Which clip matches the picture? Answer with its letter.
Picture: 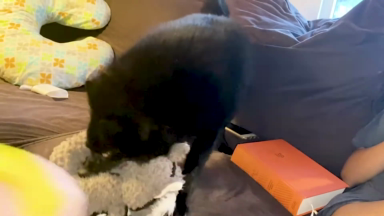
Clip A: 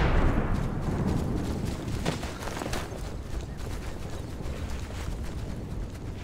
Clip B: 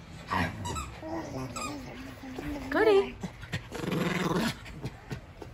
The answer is B